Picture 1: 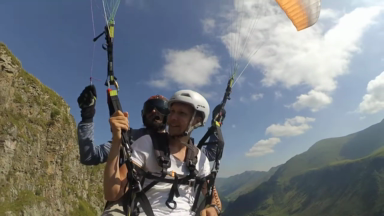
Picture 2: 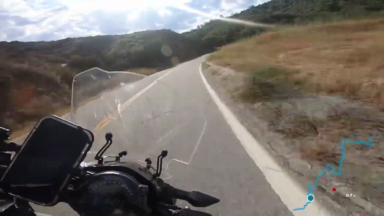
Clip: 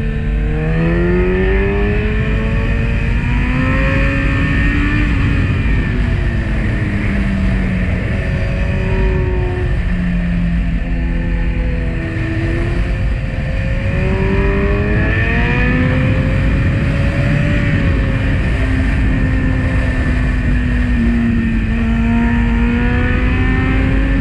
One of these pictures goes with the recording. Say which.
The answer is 2